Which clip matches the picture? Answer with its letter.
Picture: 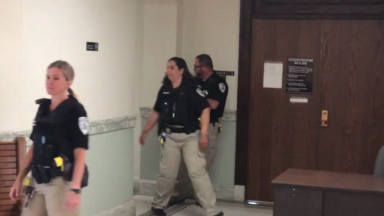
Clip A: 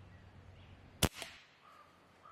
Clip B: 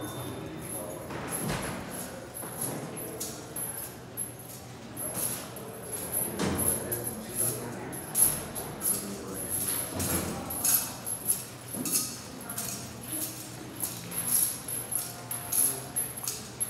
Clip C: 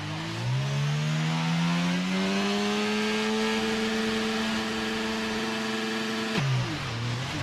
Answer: B